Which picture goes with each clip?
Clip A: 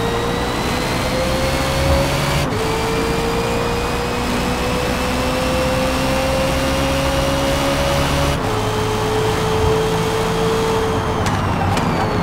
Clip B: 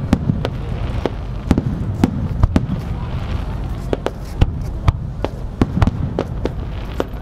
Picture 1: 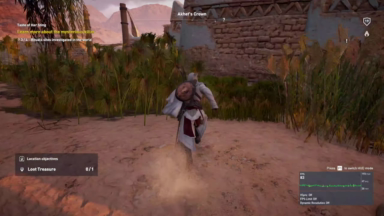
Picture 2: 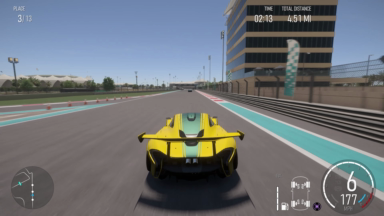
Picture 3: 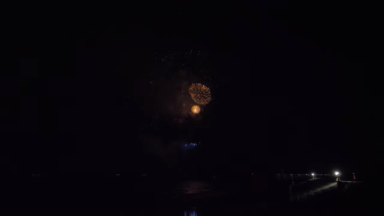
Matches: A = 2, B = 3